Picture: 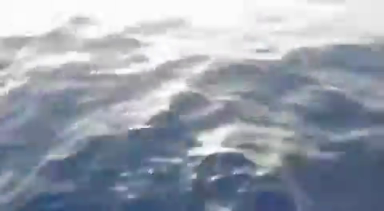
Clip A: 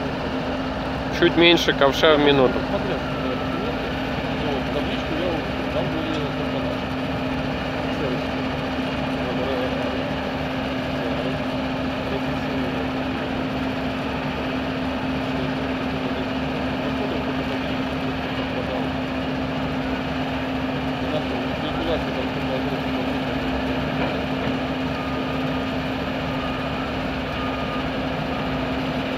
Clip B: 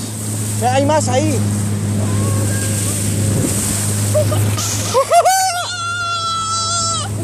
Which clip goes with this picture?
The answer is B